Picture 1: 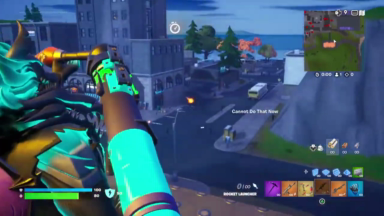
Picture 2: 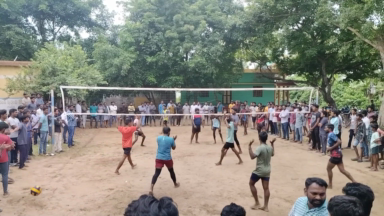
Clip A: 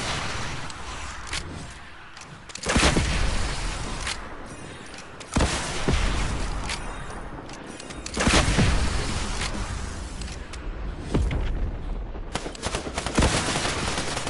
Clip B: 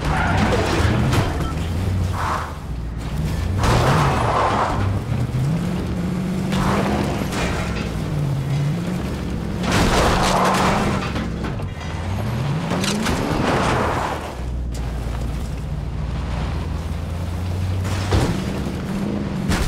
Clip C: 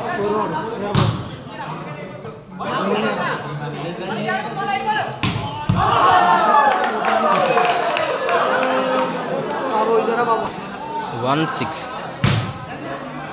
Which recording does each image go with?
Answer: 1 A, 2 C